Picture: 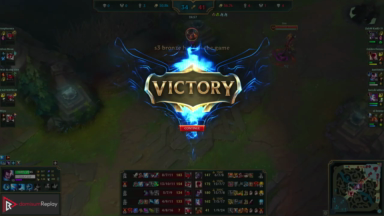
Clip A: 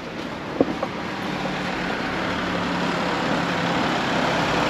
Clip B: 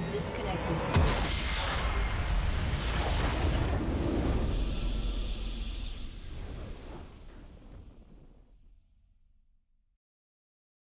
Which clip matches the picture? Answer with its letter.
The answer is B